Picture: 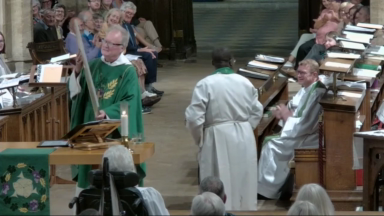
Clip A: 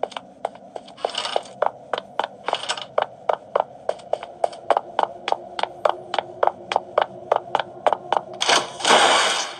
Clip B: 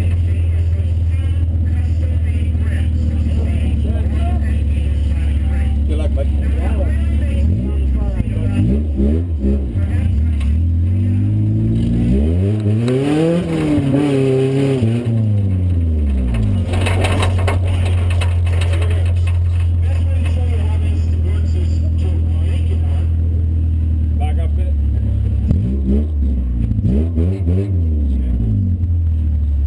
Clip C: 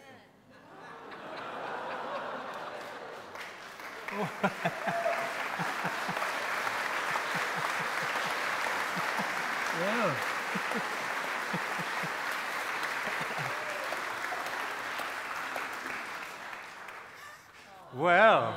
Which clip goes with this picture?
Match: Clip C